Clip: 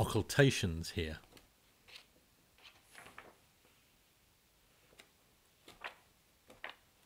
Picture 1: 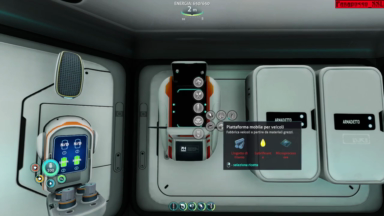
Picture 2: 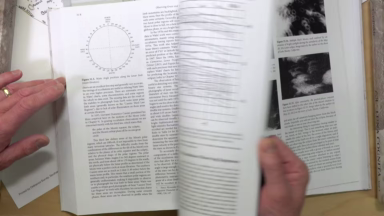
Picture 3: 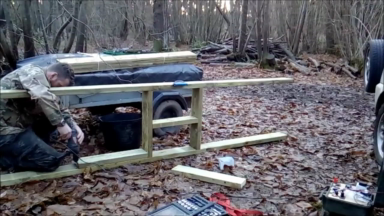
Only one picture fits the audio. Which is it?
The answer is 2